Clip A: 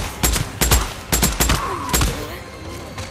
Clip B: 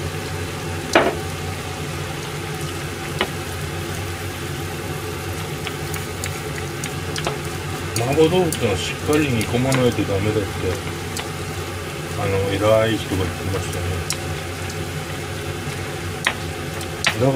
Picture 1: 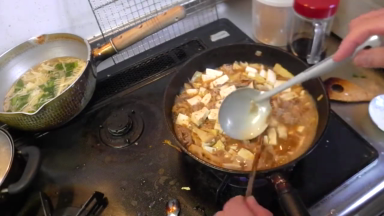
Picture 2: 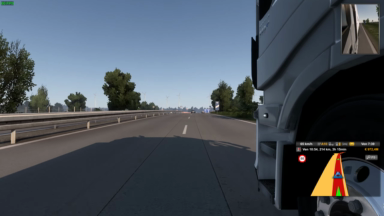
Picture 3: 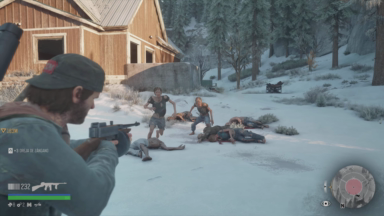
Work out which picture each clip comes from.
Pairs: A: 3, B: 1